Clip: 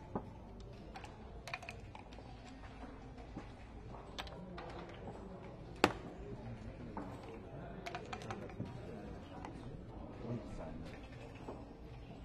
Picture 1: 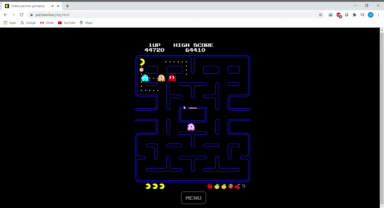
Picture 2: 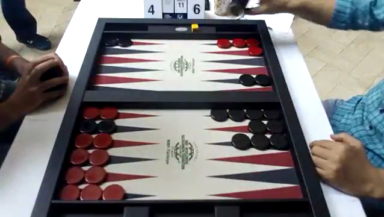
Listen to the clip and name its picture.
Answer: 2